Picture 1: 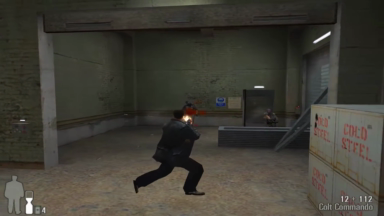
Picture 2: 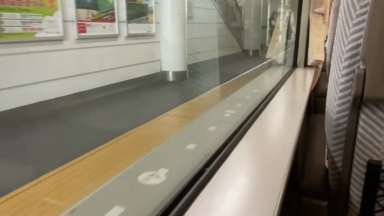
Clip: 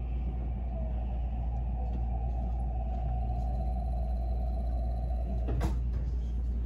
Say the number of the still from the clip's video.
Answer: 2